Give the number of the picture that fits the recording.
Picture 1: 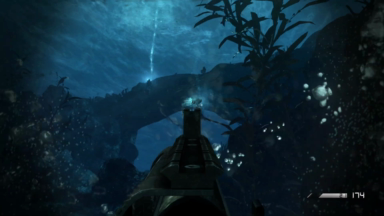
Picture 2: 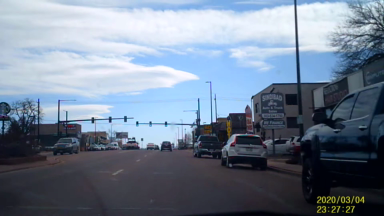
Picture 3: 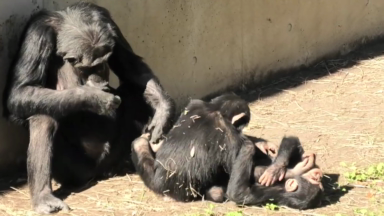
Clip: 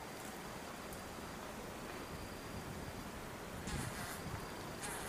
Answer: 3